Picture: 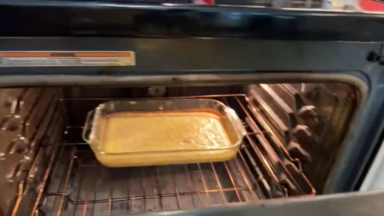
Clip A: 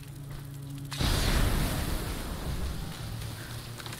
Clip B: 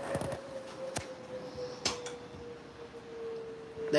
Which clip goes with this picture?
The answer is B